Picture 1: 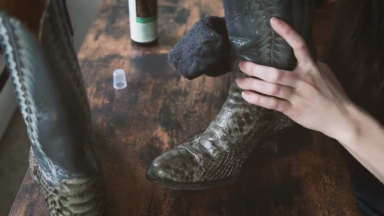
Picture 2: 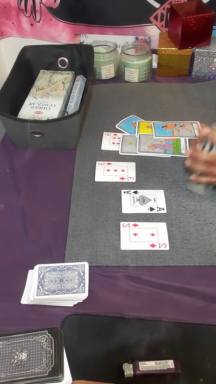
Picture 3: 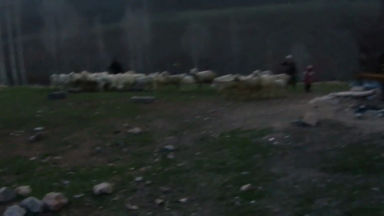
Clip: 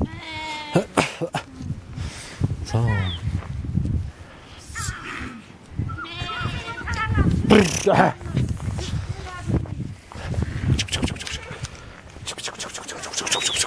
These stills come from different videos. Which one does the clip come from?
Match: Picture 3